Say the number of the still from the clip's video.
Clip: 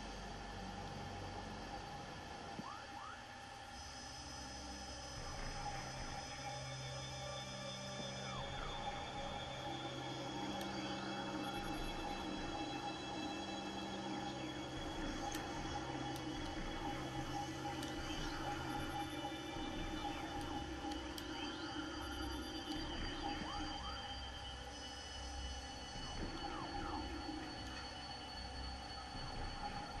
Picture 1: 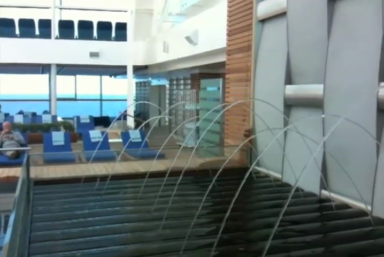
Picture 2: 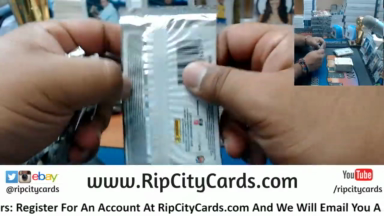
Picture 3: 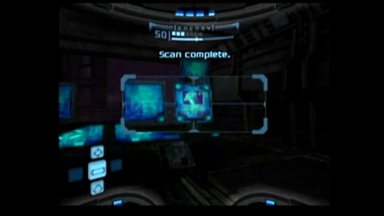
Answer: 3